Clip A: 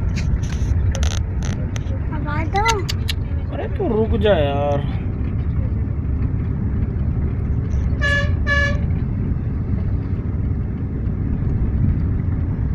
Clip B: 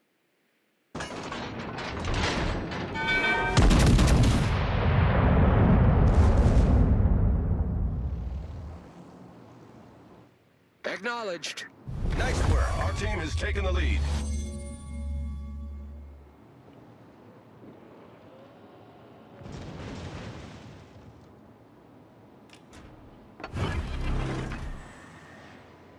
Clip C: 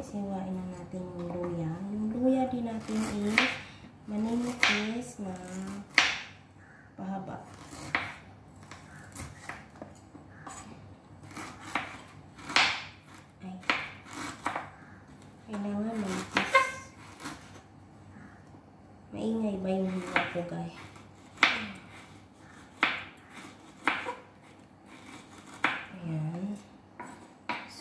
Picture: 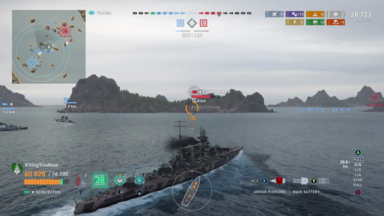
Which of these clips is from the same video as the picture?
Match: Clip B